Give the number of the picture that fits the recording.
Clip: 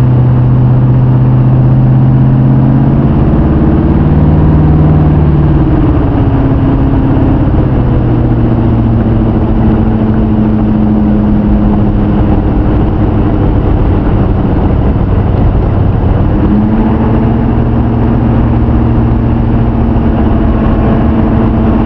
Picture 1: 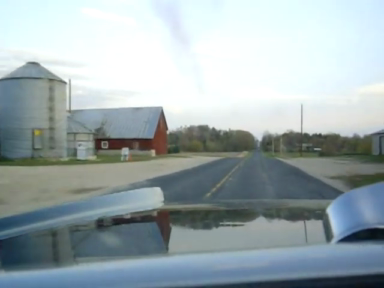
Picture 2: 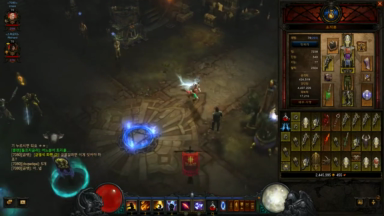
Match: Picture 1